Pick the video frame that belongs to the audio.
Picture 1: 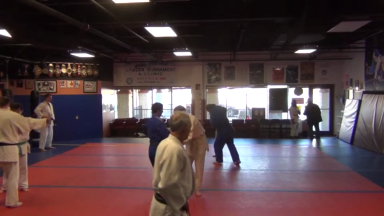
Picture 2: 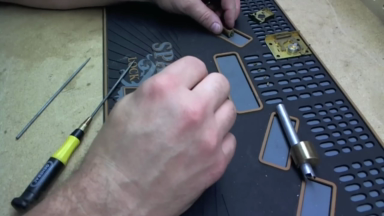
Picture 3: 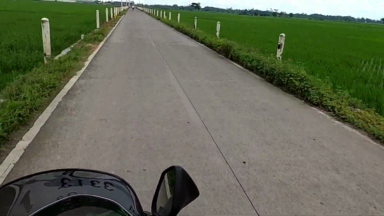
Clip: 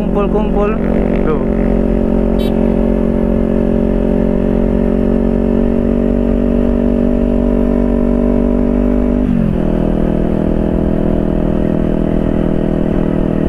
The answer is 3